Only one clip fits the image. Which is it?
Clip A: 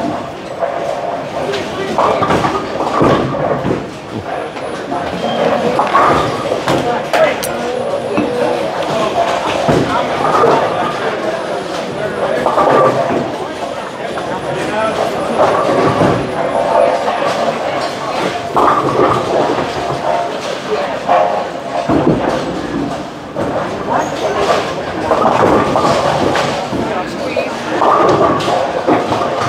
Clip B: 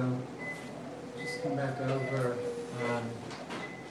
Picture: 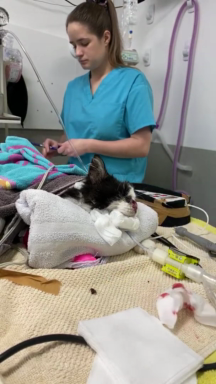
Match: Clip B